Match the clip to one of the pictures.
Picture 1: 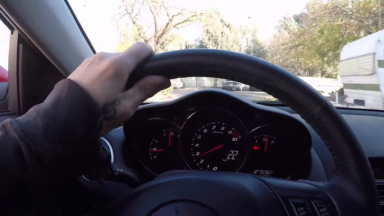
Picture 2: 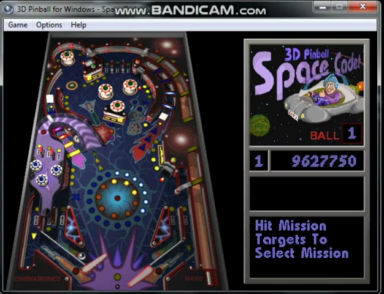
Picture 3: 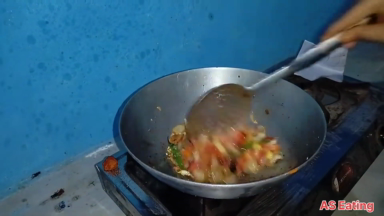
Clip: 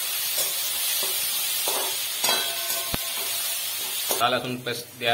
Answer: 3